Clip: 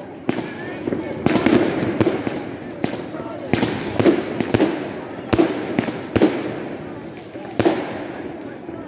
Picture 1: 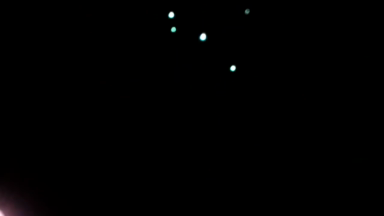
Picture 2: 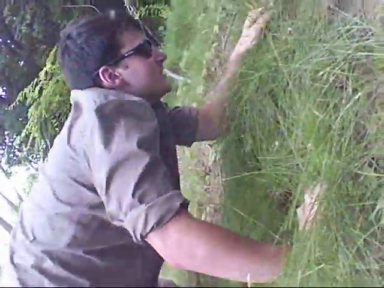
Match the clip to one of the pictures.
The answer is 1